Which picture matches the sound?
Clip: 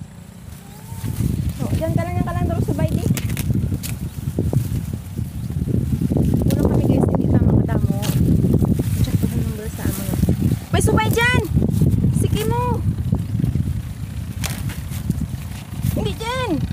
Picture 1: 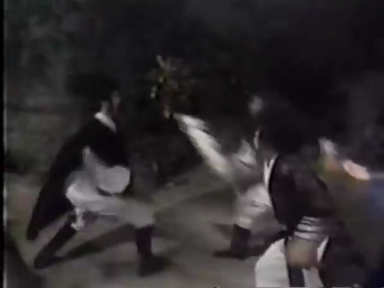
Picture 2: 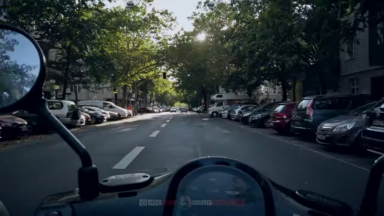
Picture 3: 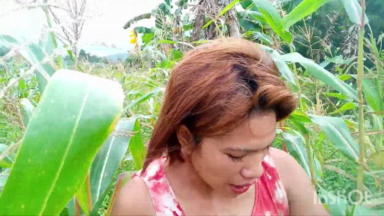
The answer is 3